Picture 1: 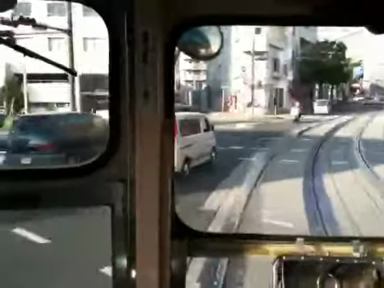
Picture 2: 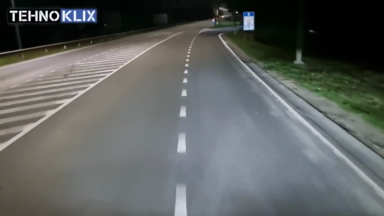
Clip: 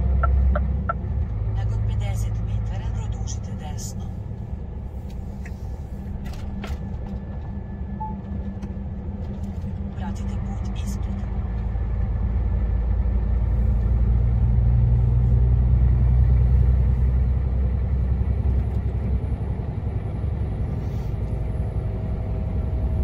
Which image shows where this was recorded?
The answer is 2